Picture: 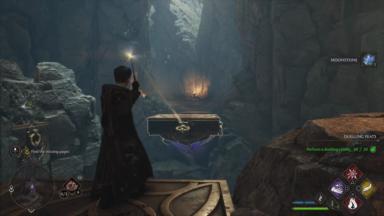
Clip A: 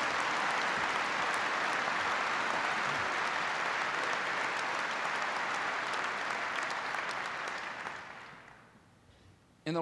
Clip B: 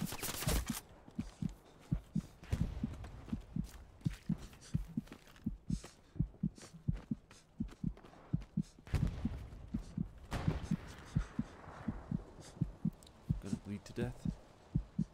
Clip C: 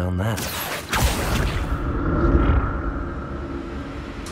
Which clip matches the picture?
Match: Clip C